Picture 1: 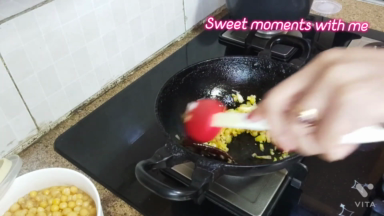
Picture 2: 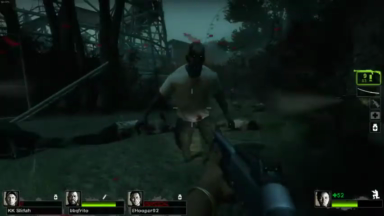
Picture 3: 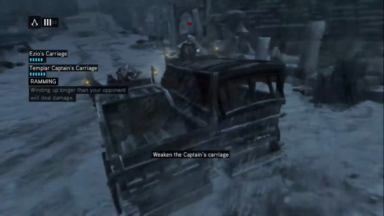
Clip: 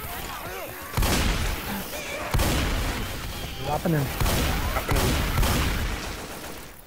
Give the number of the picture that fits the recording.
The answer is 2